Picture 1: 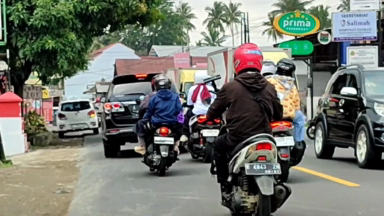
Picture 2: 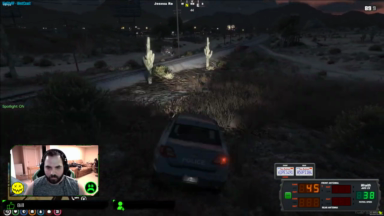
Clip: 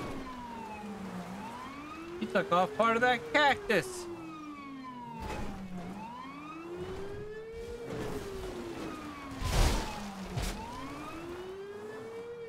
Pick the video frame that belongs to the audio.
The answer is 2